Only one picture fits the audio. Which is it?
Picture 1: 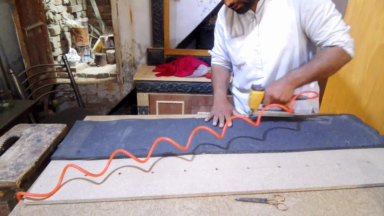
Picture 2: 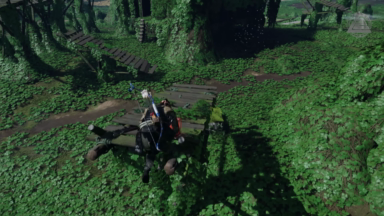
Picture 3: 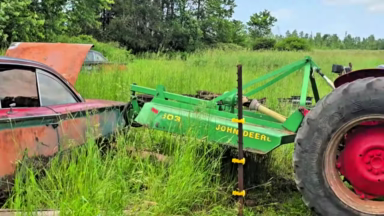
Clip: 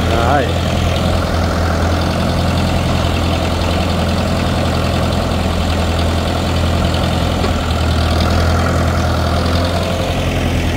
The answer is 3